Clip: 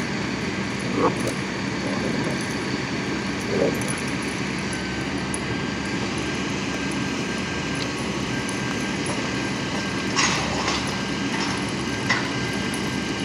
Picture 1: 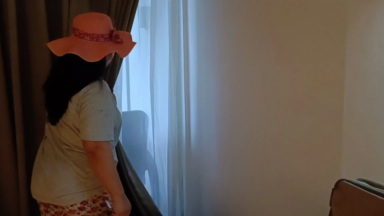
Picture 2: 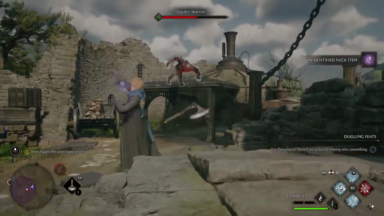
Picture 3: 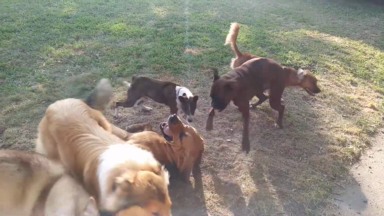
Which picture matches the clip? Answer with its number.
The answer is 3